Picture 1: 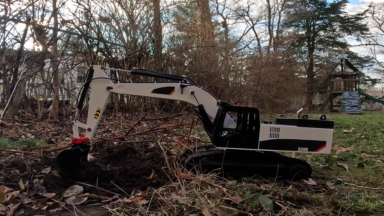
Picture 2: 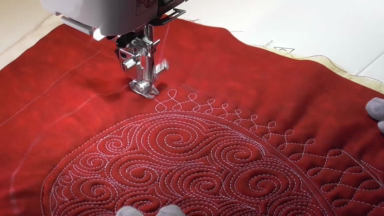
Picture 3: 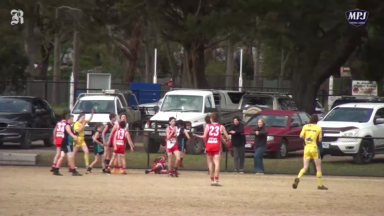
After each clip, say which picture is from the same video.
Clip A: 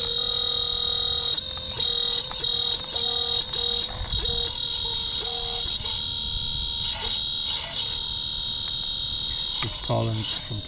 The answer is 1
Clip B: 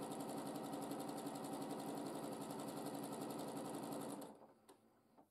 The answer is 2